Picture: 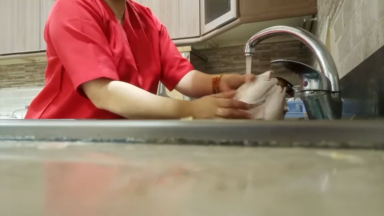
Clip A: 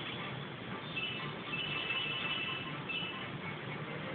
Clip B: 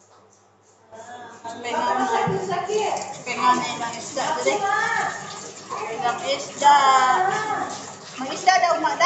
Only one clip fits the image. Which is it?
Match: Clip B